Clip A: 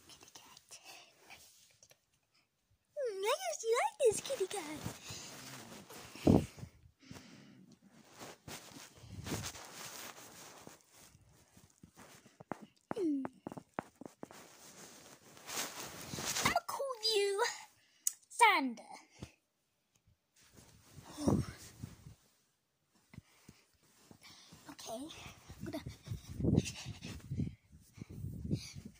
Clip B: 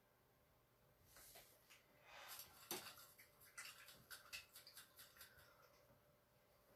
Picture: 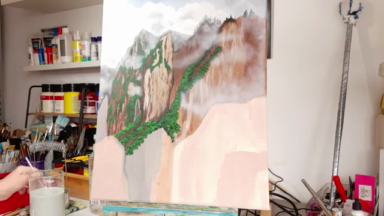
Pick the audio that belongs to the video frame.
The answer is B